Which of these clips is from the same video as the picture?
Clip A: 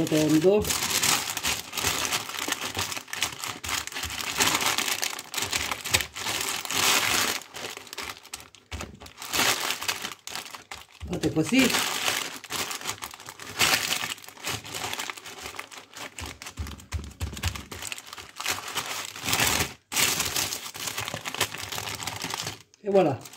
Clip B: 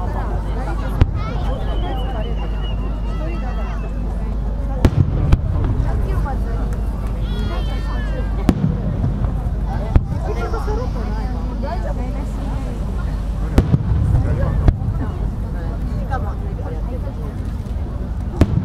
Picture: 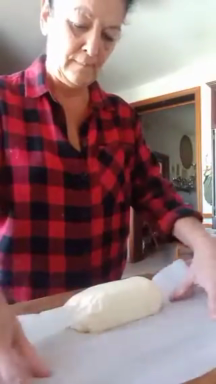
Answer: A